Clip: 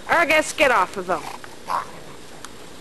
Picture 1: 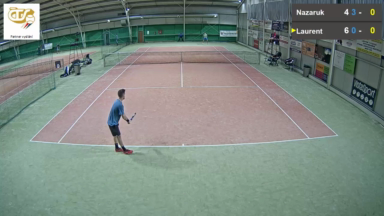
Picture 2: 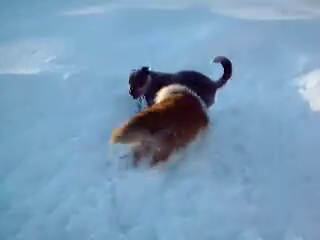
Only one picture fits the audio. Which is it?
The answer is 2